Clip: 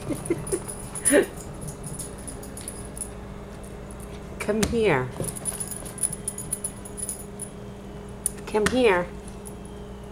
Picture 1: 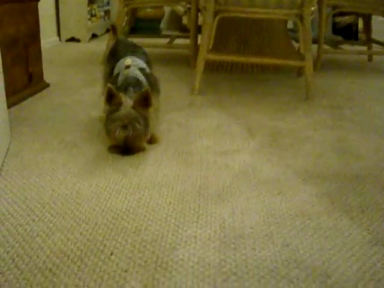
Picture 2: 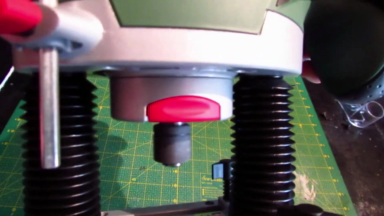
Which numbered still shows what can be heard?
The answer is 1